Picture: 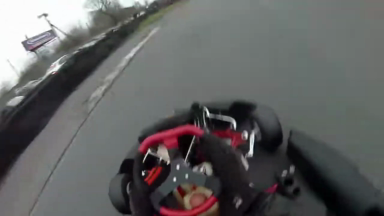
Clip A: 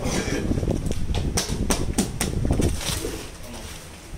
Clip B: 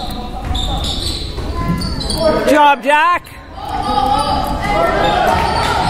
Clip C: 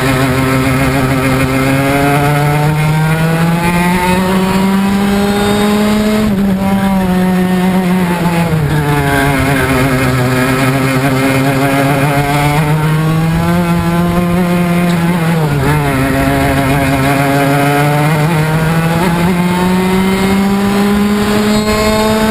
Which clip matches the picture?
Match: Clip C